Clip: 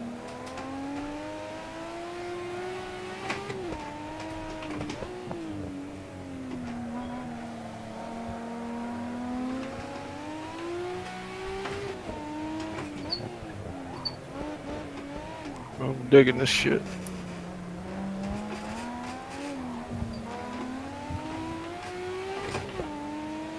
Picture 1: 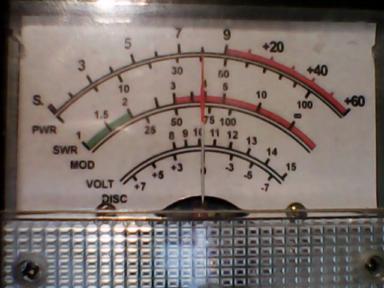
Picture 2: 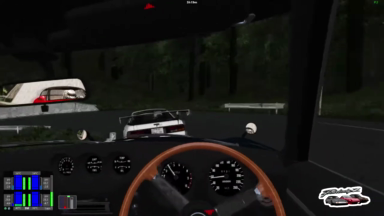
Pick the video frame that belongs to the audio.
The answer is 2